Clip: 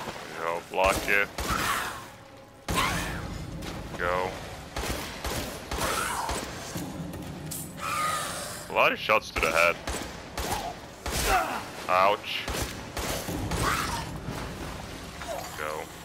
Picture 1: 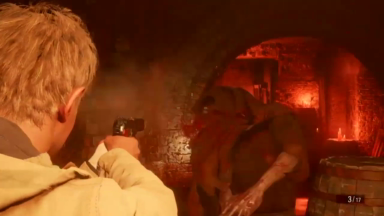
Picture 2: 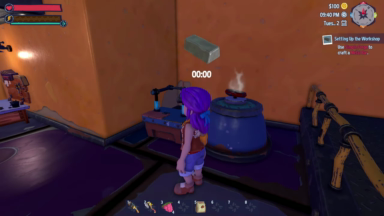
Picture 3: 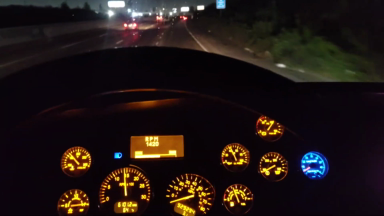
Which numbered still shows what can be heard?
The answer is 1